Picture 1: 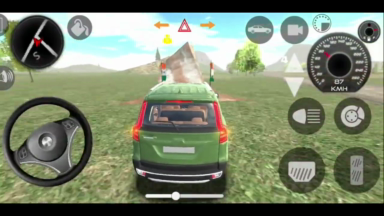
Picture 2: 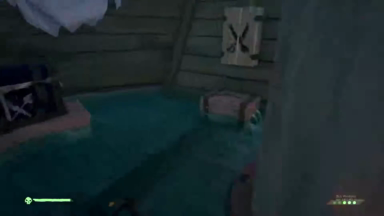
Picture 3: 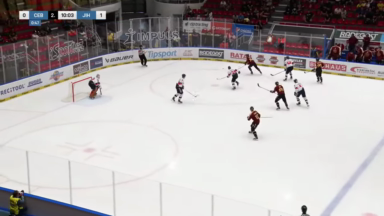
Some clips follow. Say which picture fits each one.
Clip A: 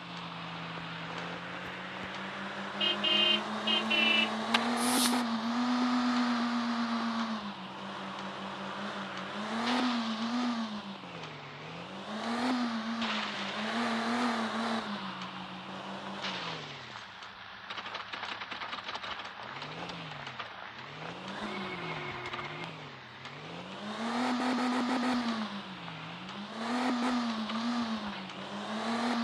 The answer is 1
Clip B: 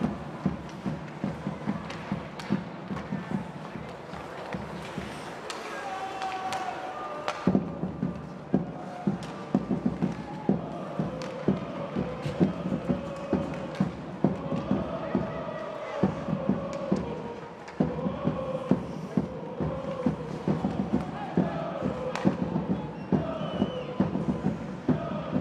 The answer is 3